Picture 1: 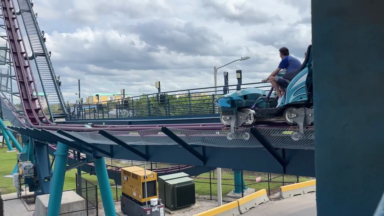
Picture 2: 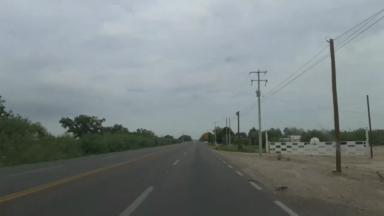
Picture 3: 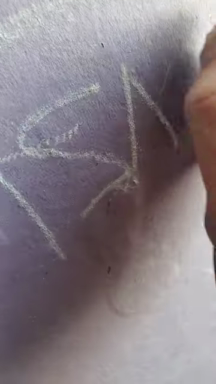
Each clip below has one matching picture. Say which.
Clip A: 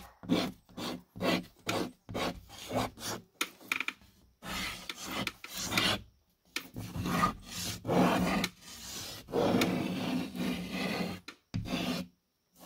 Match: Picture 3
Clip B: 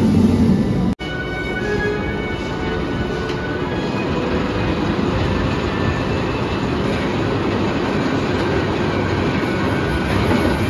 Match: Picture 1